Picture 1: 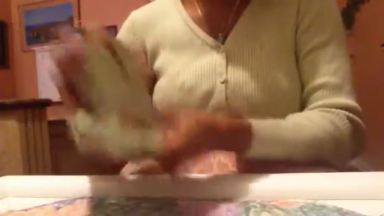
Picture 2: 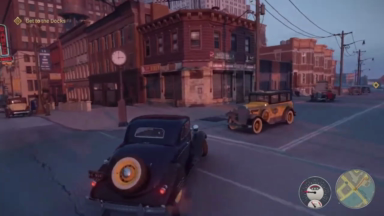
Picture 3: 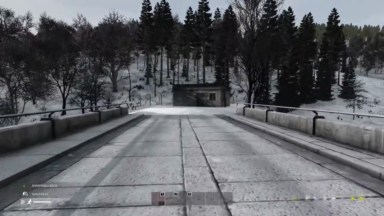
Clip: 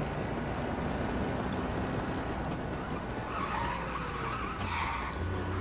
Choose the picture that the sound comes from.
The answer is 2